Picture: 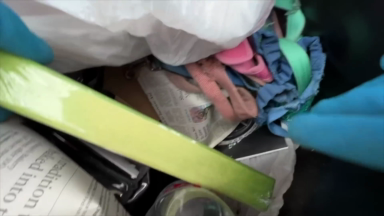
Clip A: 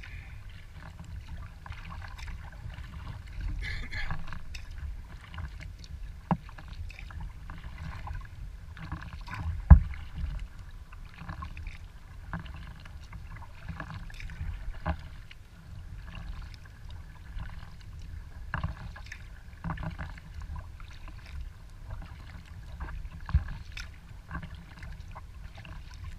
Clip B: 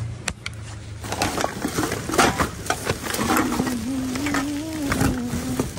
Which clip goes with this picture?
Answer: B